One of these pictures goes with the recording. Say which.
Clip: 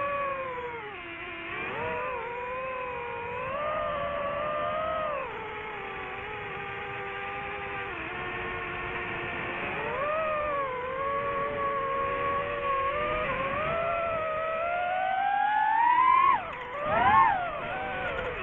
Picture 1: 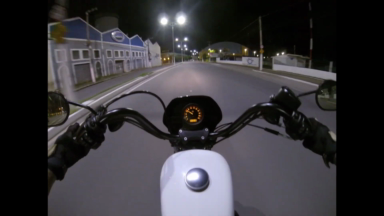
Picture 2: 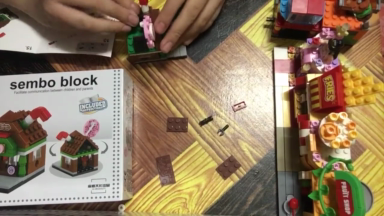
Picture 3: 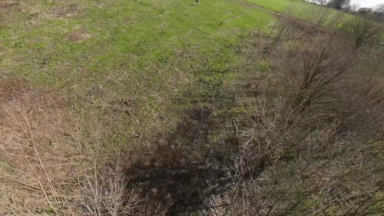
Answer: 3